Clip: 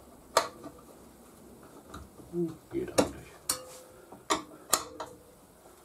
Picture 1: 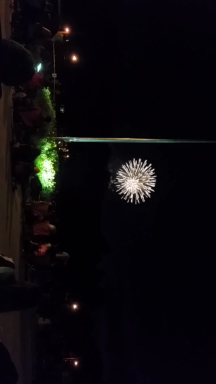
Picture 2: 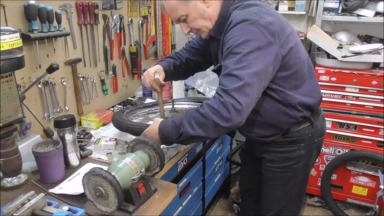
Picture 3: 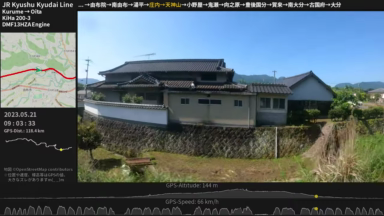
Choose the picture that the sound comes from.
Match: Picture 2